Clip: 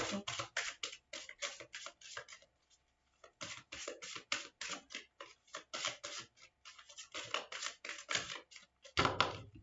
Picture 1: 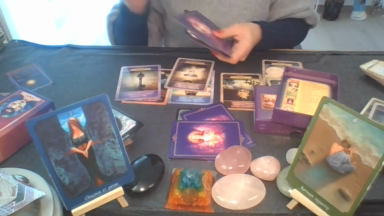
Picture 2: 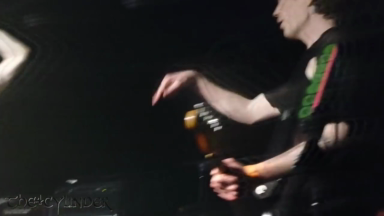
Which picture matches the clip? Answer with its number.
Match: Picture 1